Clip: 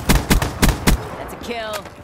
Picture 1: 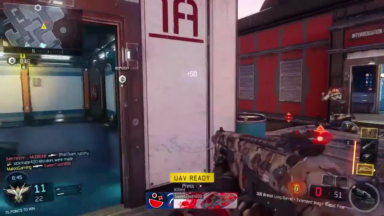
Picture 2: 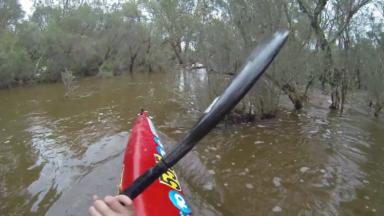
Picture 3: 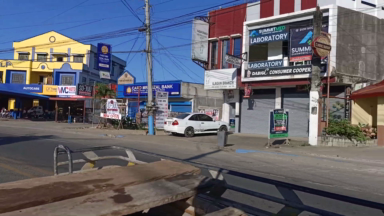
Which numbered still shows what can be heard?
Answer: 1